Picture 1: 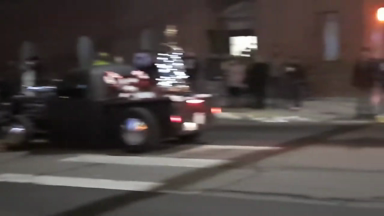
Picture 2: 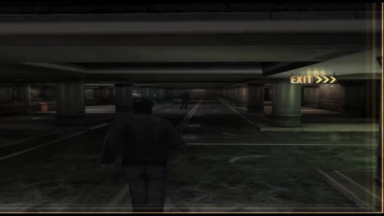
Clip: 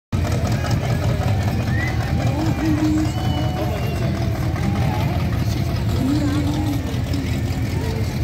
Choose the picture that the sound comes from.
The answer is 1